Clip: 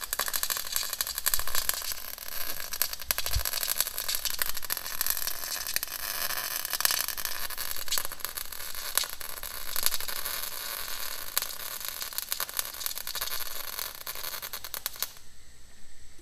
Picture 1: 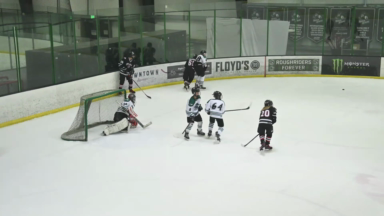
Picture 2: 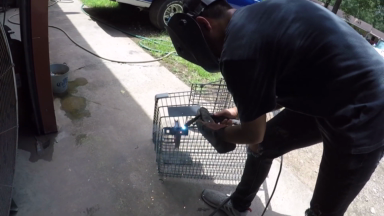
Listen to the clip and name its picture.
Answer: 2